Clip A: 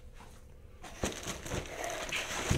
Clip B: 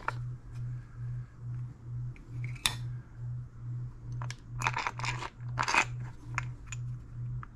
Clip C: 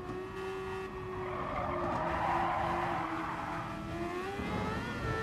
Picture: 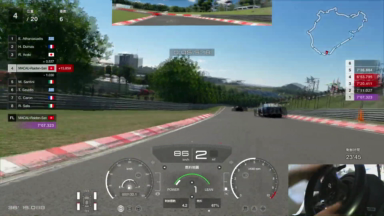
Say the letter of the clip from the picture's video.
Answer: C